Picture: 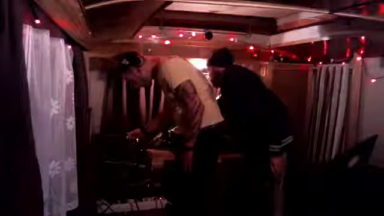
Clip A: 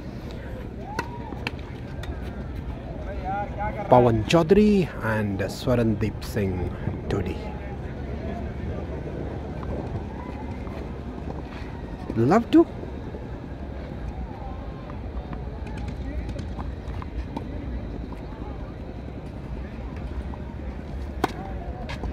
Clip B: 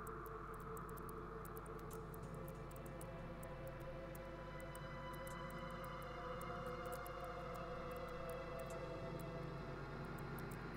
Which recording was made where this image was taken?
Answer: B